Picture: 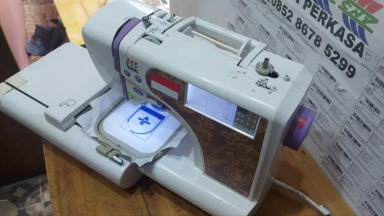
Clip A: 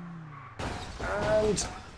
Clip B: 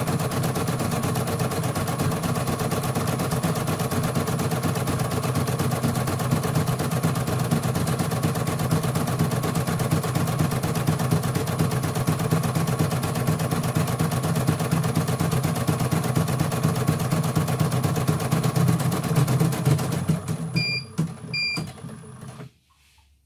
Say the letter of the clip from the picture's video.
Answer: B